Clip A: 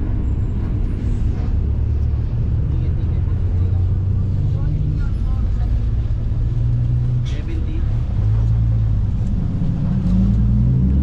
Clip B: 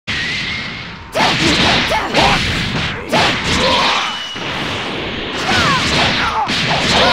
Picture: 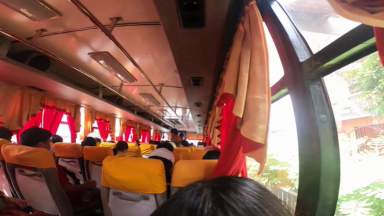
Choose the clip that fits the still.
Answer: A